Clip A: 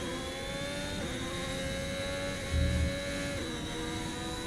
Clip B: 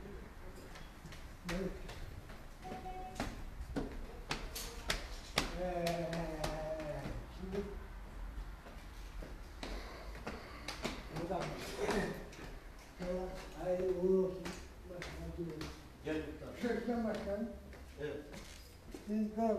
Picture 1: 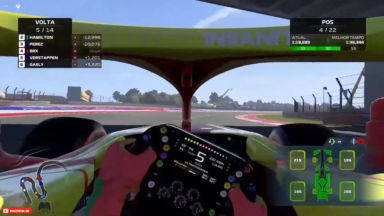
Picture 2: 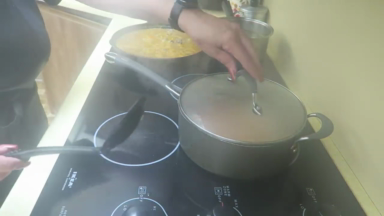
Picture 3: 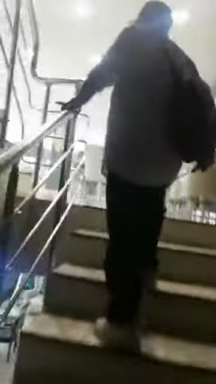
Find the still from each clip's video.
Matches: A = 1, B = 3